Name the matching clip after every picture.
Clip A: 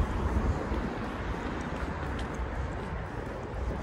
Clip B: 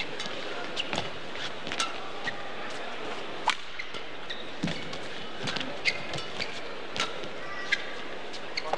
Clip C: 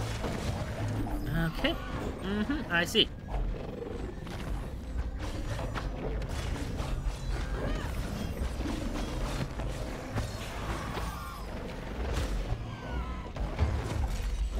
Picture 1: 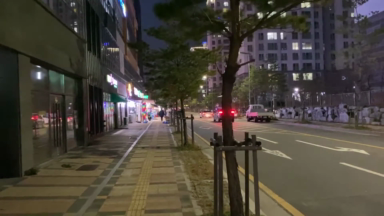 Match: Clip A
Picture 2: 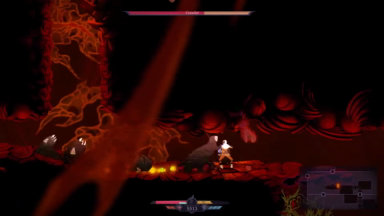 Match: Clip C